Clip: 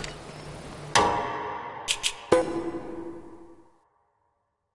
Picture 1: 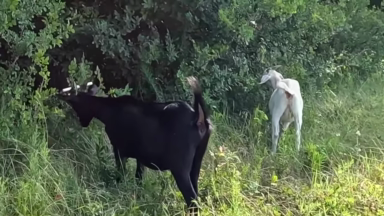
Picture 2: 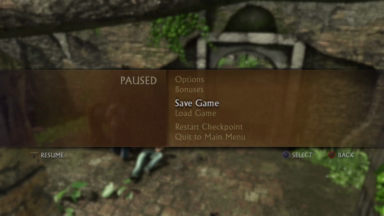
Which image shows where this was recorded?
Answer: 2